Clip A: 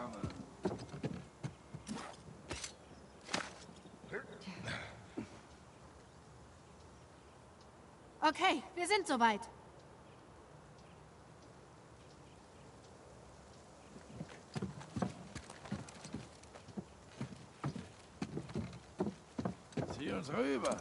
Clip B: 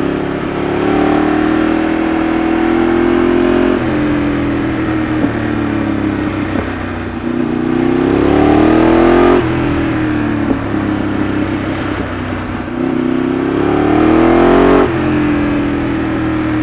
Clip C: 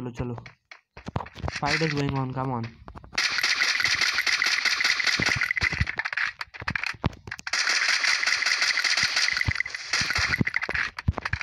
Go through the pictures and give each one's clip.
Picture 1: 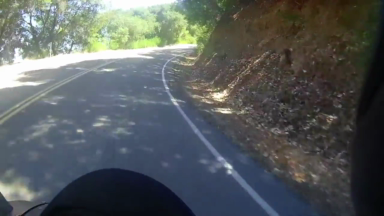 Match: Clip B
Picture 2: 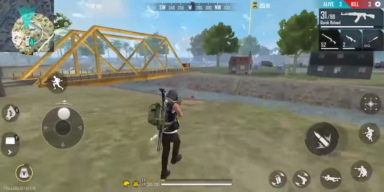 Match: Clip C